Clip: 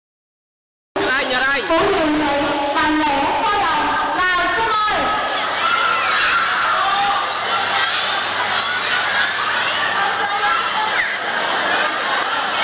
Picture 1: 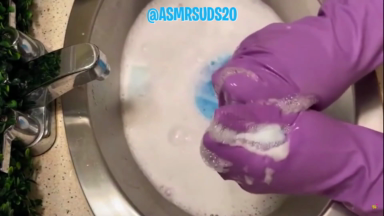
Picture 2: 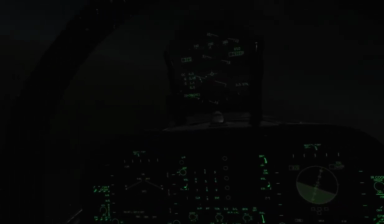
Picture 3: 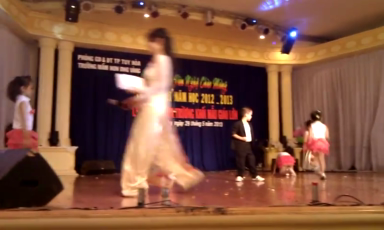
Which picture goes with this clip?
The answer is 3